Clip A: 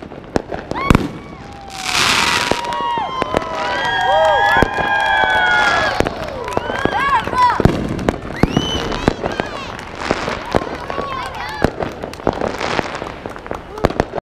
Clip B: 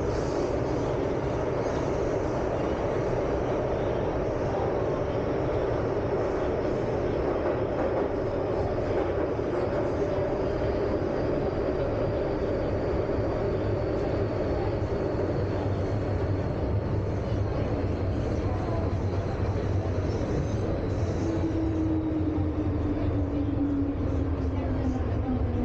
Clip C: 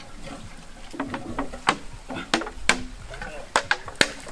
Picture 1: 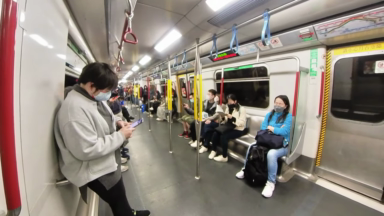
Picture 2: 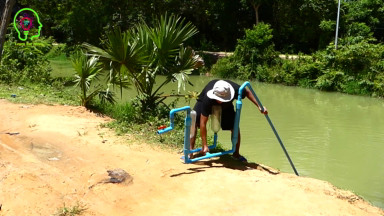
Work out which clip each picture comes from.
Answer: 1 B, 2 C